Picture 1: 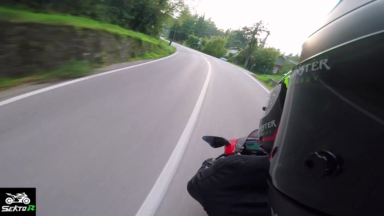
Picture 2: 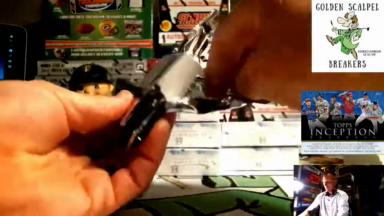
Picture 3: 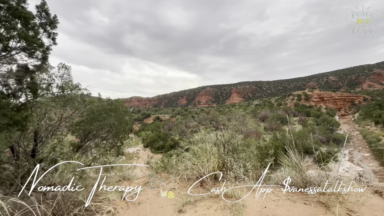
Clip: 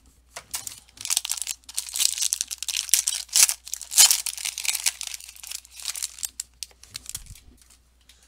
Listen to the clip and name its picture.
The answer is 2